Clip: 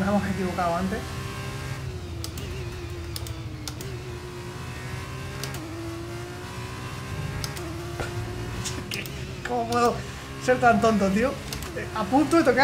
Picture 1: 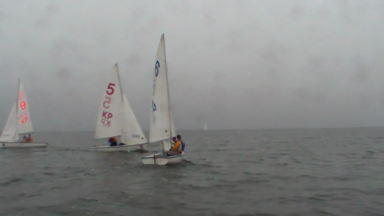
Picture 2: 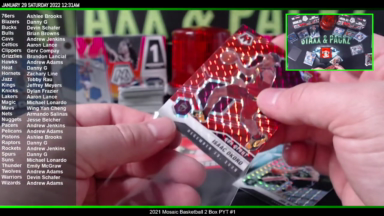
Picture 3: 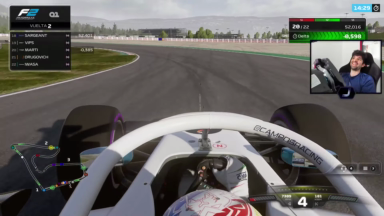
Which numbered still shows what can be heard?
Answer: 3